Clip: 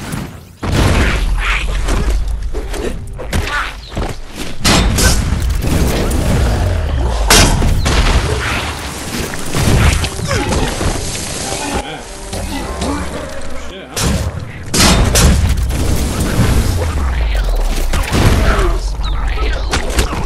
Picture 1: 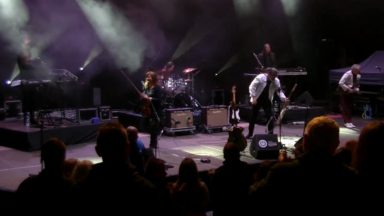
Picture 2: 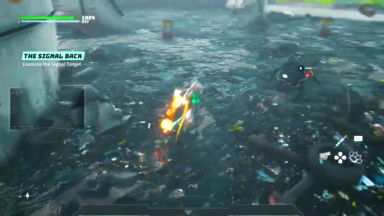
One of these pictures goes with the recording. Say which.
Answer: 2